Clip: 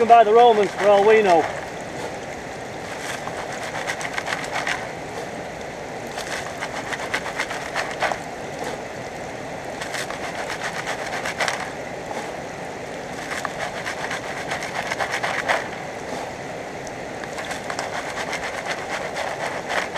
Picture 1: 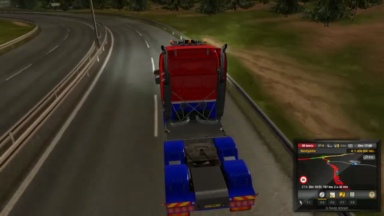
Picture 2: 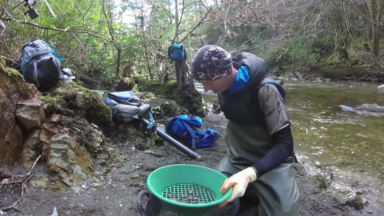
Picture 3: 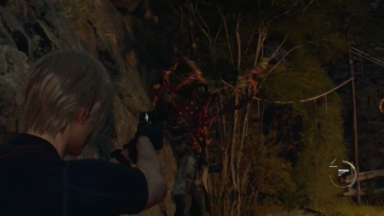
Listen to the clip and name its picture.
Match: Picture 2